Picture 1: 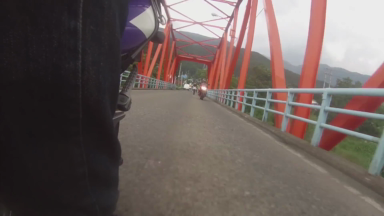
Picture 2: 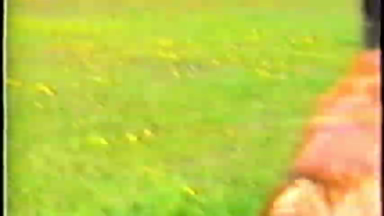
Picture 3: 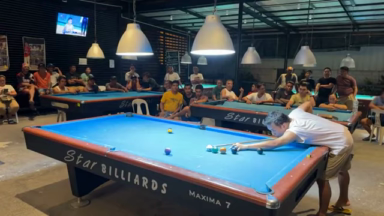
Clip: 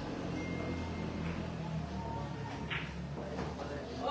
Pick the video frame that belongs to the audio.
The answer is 3